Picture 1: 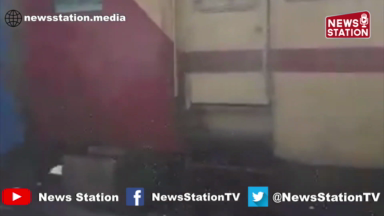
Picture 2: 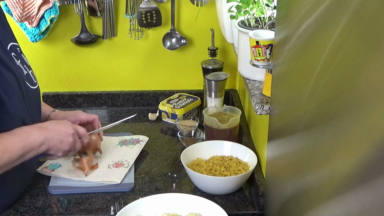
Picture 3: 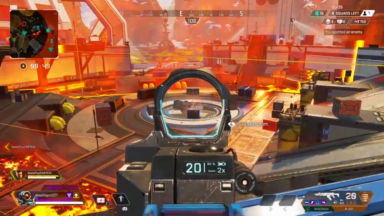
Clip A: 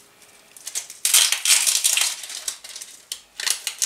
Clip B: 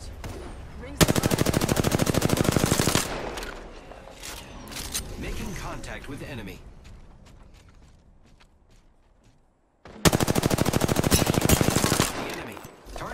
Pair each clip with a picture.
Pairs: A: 2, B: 3